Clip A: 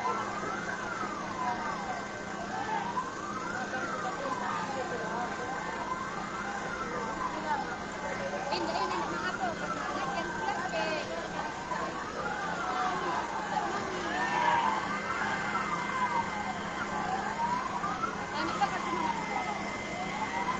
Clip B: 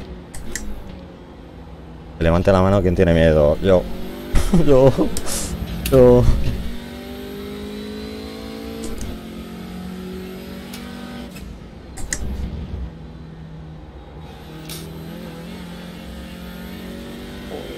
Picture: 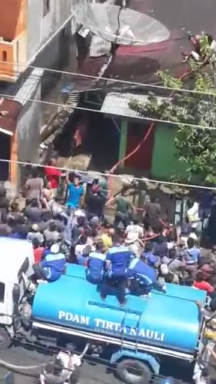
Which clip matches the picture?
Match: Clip A